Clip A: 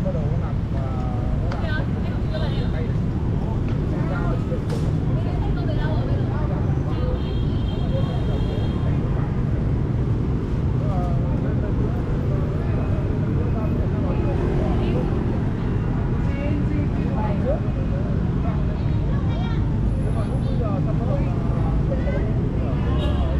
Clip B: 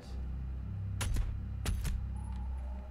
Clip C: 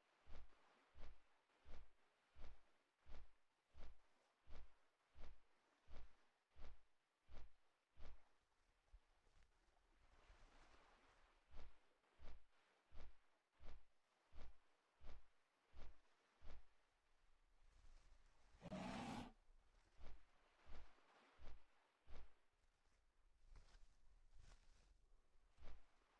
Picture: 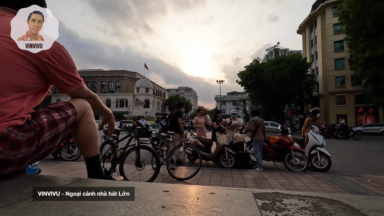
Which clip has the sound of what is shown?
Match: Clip A